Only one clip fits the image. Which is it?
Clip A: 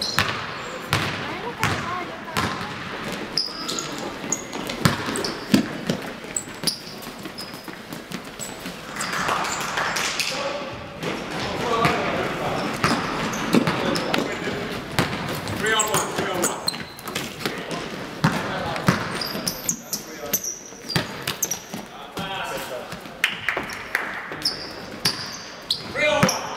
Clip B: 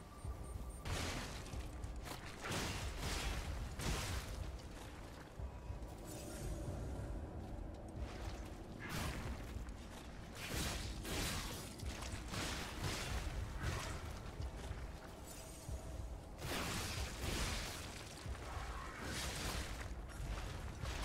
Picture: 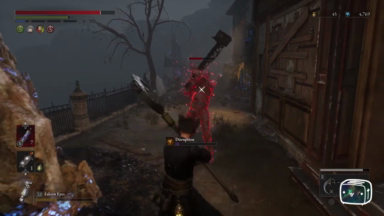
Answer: B